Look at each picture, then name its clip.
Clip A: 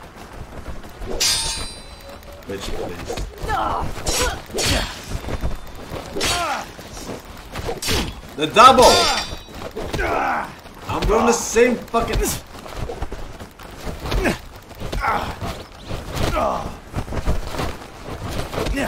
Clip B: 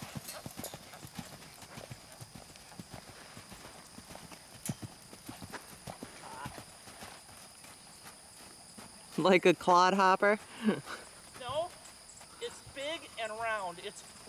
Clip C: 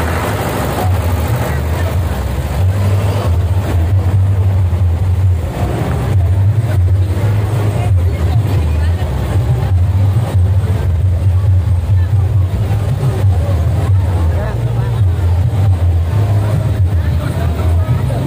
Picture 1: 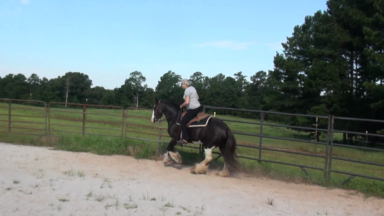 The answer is B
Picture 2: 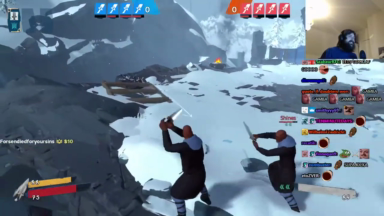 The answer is A